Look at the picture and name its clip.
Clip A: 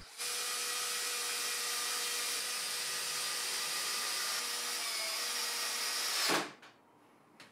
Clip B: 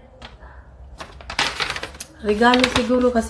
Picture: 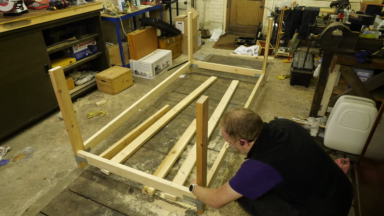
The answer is A